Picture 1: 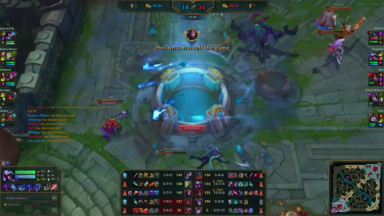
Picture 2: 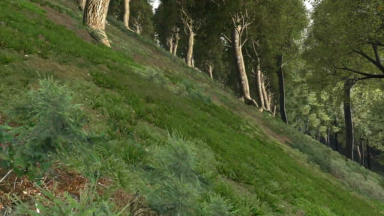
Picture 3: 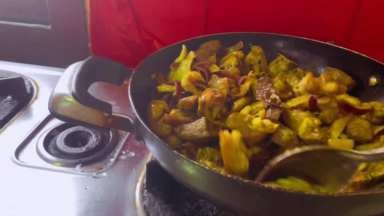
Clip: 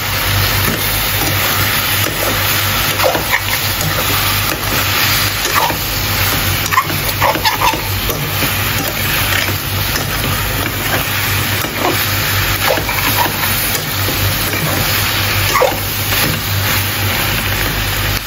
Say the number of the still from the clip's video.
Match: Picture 3